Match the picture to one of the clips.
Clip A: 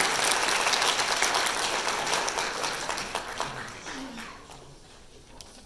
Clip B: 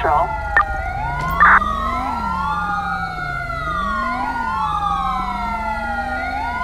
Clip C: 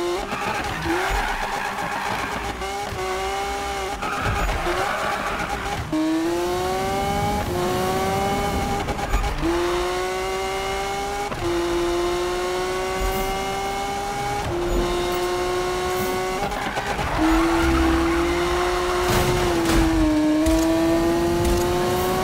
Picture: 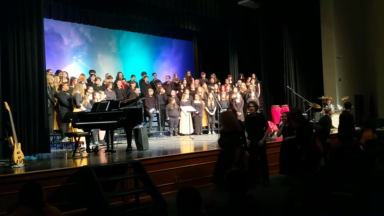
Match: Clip A